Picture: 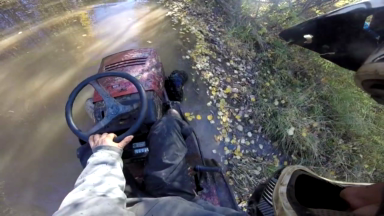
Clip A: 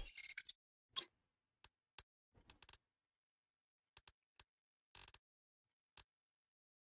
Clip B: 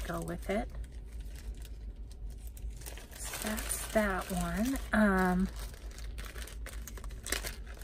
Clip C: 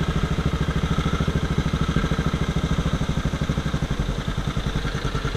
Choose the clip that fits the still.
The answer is C